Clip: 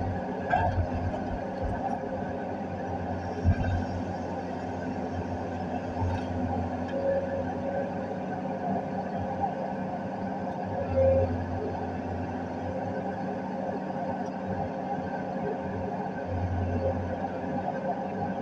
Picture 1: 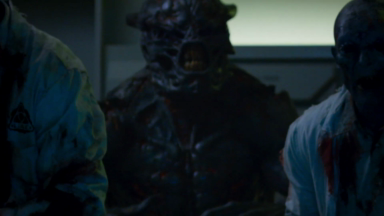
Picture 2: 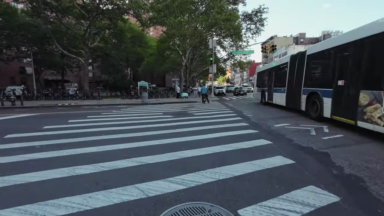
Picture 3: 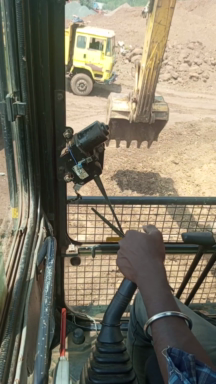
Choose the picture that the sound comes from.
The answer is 3